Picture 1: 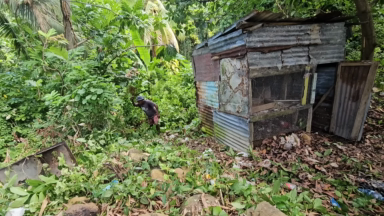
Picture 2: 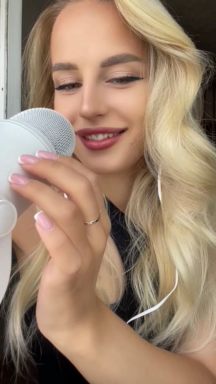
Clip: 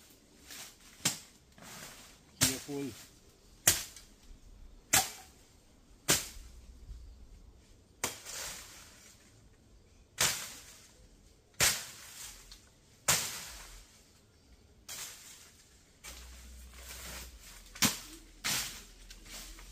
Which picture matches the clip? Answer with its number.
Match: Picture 1